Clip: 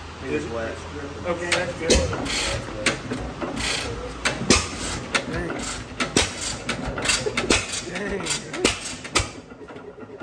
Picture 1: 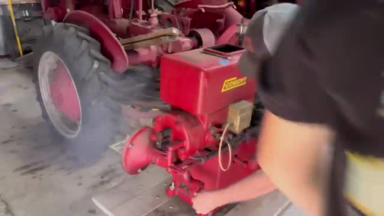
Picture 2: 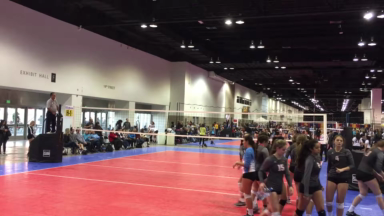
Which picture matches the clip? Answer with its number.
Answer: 1